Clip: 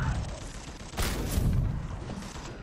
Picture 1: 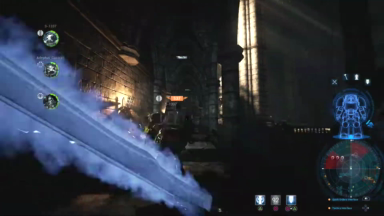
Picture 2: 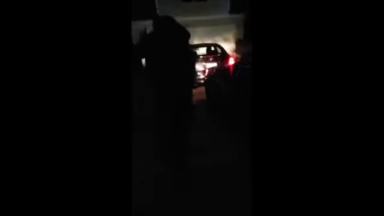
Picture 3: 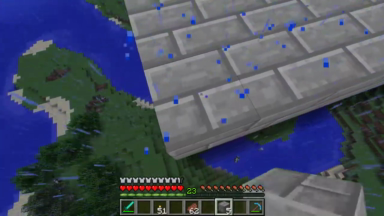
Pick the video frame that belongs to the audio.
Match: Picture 1